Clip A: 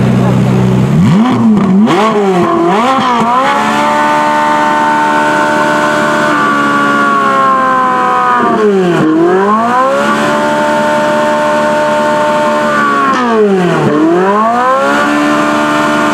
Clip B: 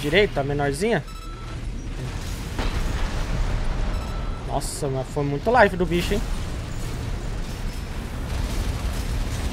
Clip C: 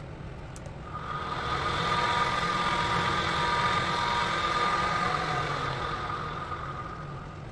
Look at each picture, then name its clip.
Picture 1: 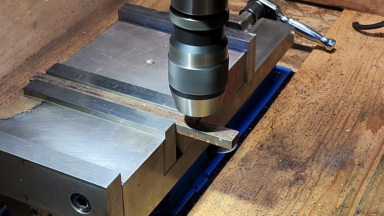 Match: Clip C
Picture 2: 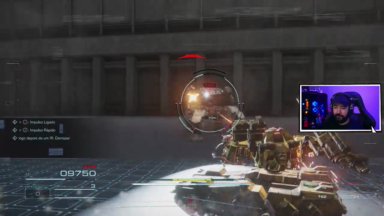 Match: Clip B